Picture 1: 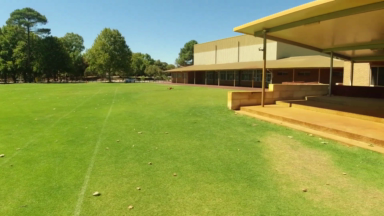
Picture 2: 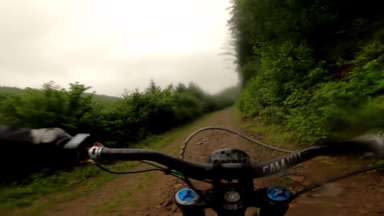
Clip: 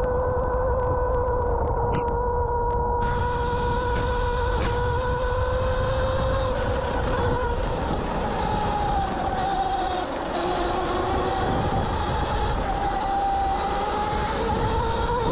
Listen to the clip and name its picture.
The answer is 2